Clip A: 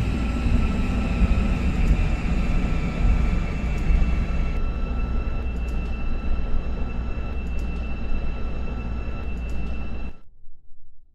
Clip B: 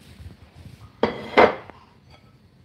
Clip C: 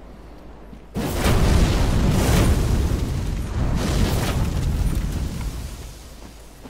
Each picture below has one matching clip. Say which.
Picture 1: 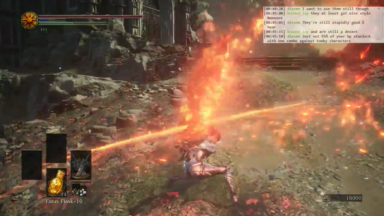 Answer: C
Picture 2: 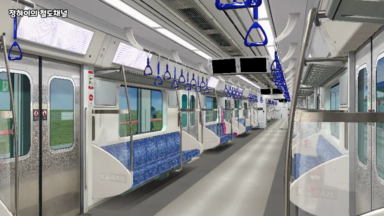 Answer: A